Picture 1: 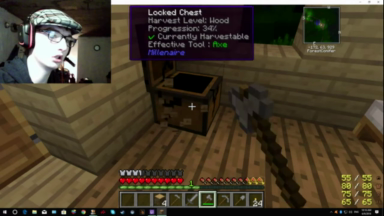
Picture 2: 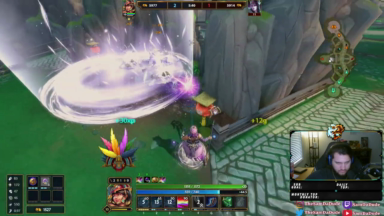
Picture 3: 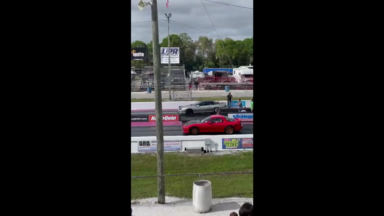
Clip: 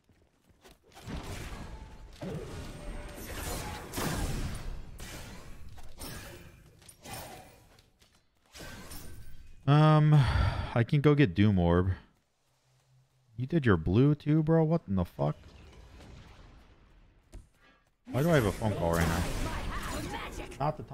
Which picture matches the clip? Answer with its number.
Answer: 2